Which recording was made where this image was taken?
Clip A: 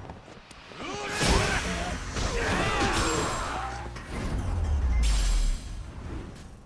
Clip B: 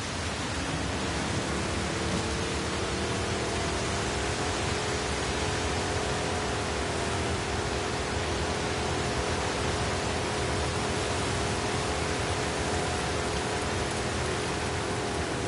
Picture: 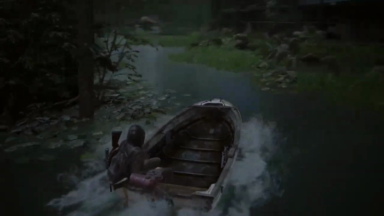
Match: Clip B